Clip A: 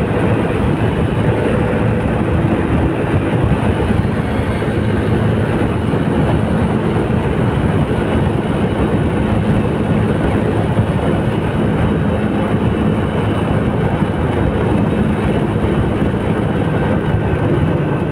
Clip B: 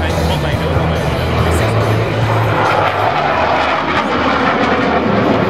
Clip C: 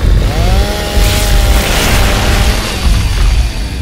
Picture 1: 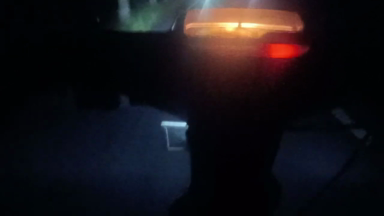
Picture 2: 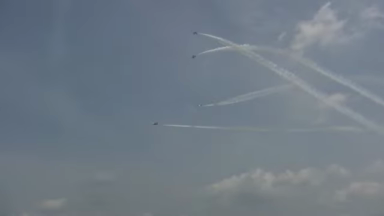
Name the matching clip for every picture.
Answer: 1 A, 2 B